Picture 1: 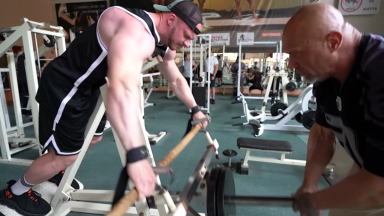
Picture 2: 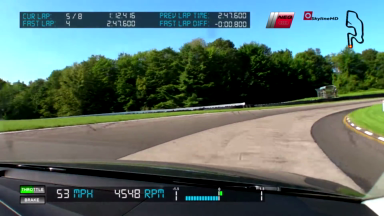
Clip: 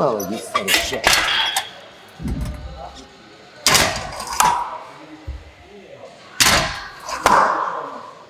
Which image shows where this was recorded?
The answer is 1